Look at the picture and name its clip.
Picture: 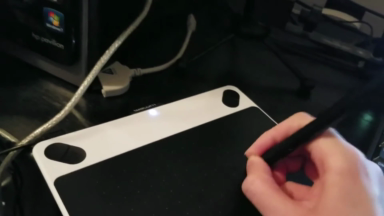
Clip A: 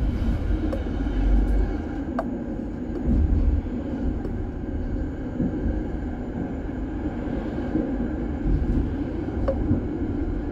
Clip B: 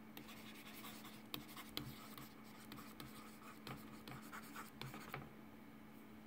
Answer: B